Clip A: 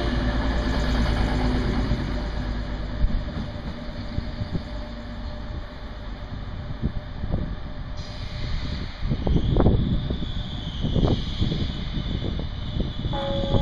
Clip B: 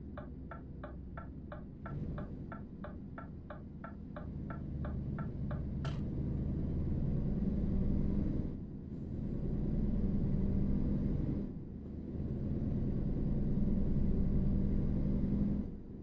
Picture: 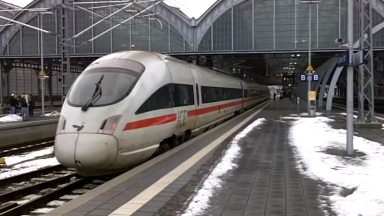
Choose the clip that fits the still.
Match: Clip A